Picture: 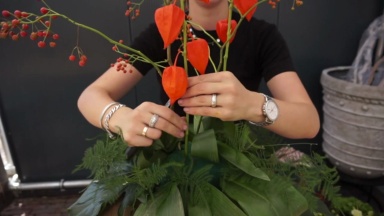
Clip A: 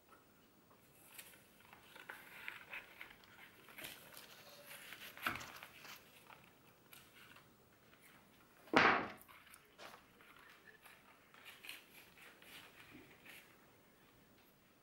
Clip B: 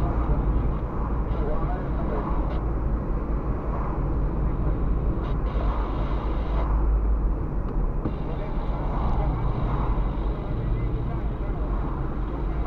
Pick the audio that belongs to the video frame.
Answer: A